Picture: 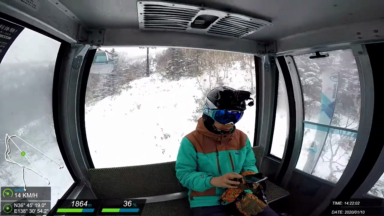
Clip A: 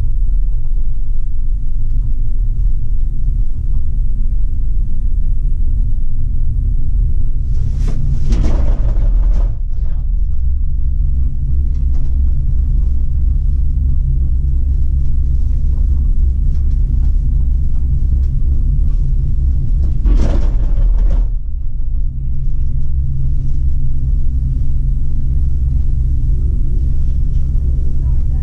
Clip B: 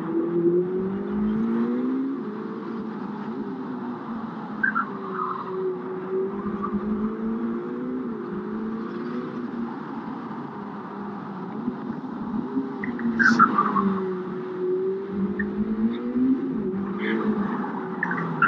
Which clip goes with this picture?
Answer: A